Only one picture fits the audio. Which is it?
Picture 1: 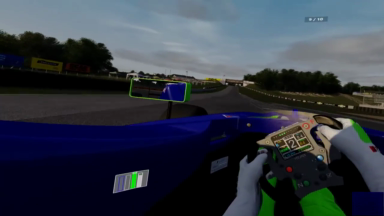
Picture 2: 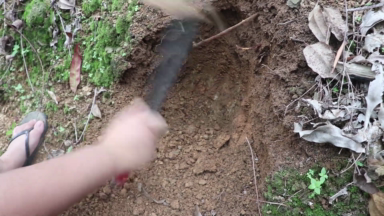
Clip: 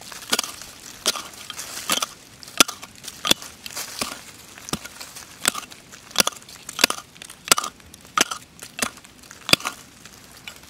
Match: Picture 2